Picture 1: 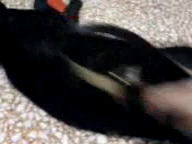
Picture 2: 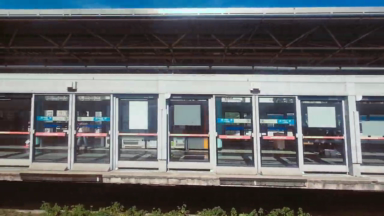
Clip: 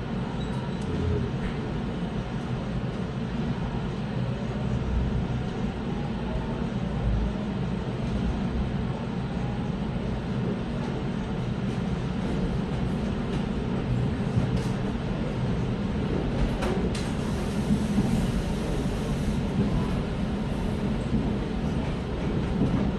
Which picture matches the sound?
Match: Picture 2